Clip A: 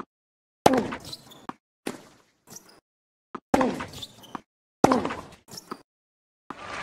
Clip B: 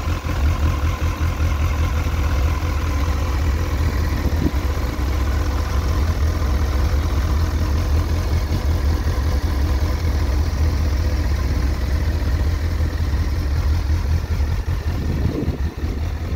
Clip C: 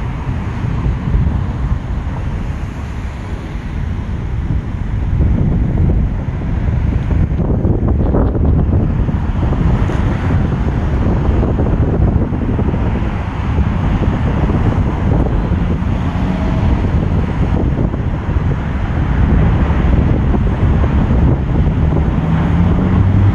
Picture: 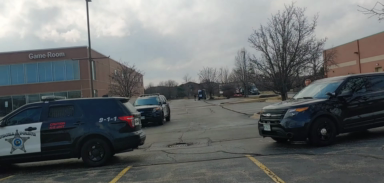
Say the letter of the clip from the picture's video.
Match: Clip C